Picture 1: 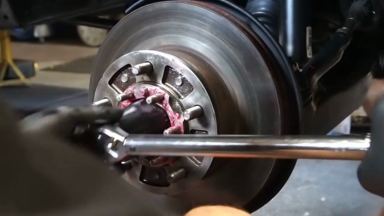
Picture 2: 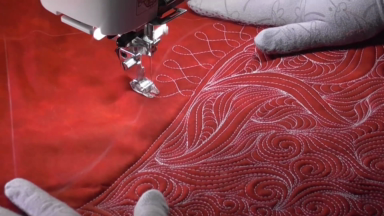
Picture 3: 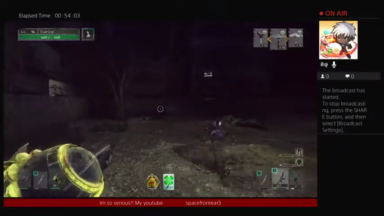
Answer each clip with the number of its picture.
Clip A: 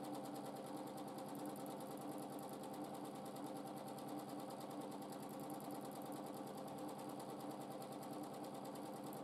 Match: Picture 2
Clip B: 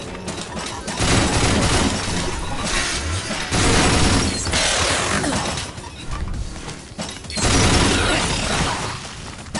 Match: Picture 3